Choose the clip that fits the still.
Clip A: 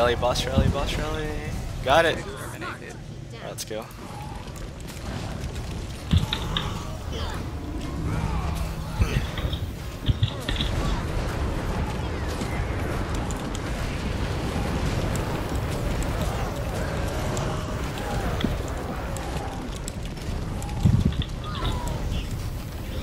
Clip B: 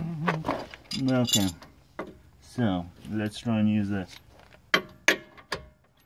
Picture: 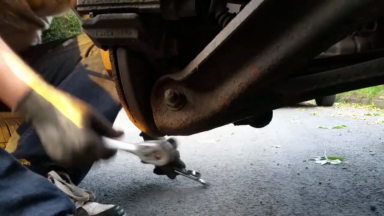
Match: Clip B